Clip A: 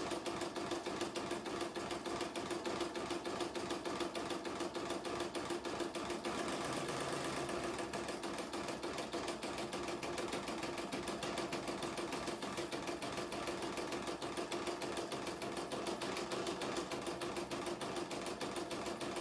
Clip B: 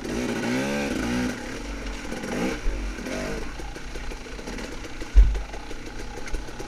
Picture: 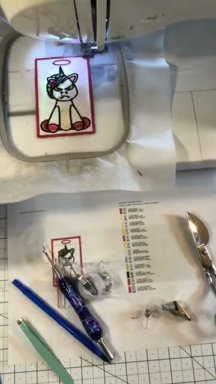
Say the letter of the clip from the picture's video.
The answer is A